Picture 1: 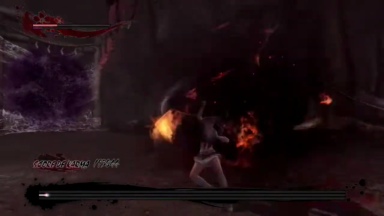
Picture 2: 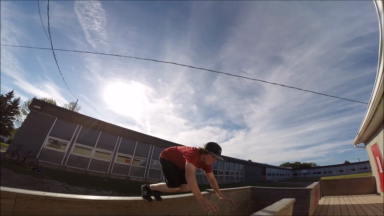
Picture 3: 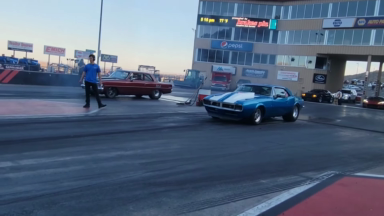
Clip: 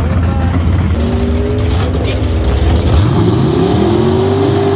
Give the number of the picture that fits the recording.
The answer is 3